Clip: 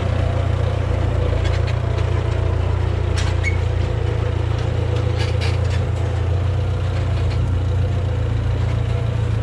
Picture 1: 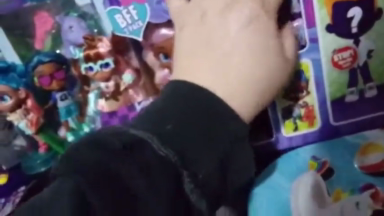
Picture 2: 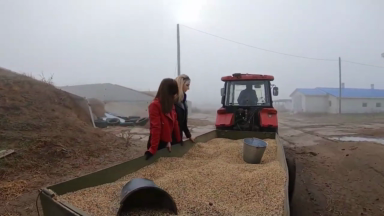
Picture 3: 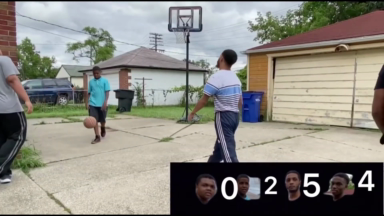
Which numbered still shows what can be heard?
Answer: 2